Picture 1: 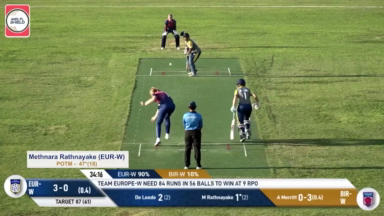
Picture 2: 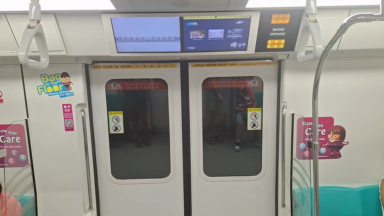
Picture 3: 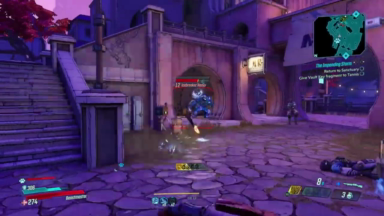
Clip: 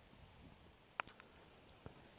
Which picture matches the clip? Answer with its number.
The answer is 1